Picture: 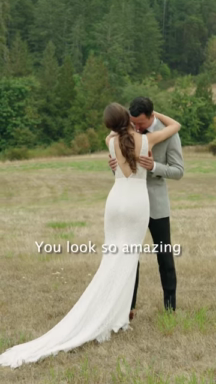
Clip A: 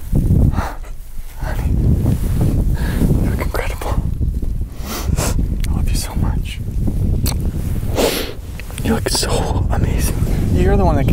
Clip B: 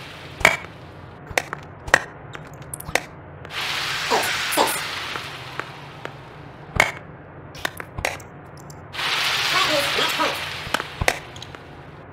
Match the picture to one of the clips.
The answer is A